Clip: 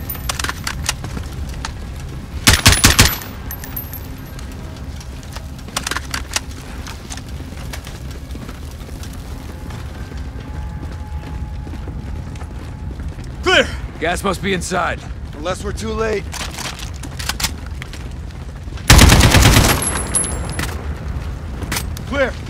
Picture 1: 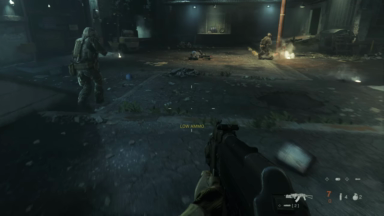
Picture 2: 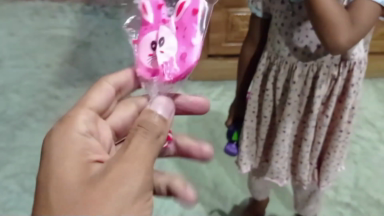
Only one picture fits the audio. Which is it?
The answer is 1